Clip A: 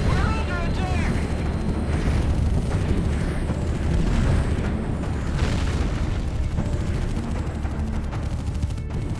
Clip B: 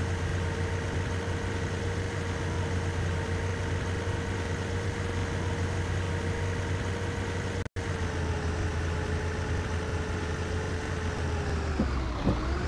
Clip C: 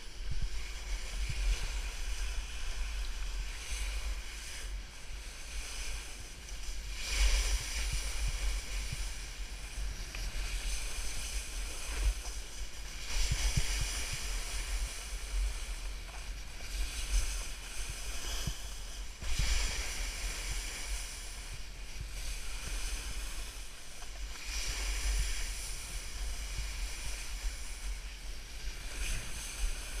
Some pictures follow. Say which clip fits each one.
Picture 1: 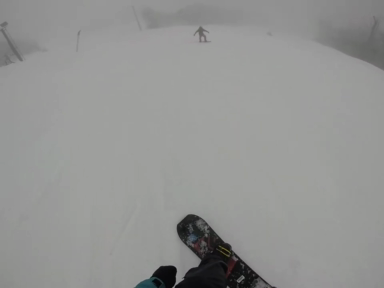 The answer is C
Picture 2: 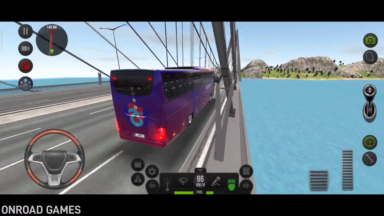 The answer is B